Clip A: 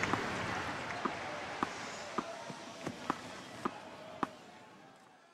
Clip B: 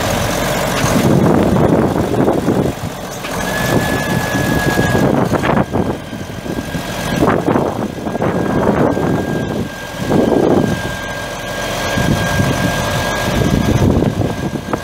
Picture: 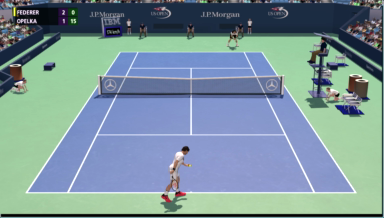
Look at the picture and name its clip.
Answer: A